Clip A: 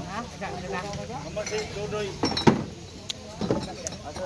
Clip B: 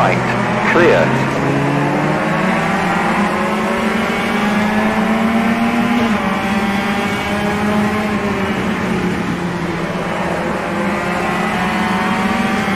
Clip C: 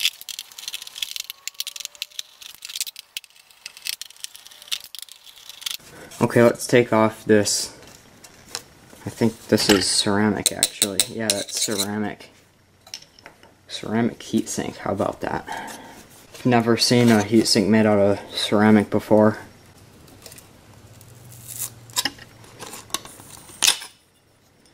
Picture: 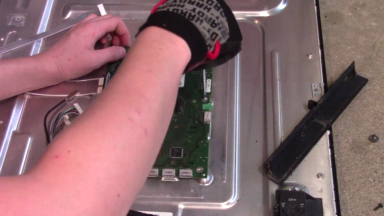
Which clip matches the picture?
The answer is C